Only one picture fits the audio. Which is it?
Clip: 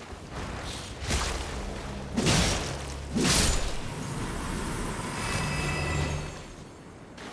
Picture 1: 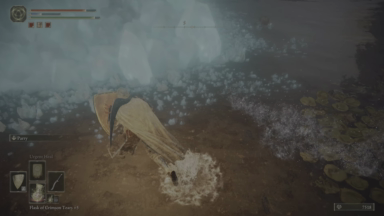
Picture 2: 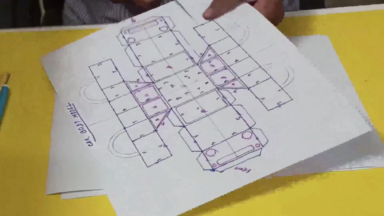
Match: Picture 1